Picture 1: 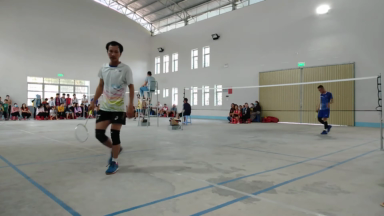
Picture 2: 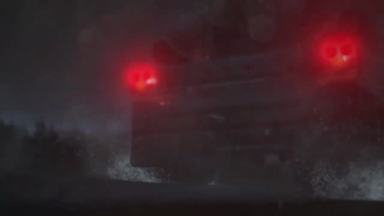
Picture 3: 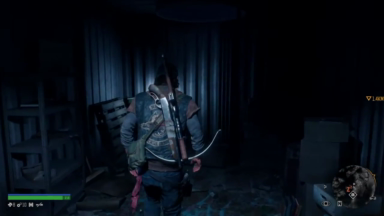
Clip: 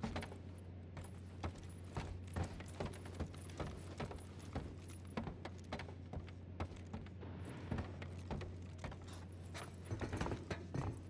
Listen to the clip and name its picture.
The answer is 3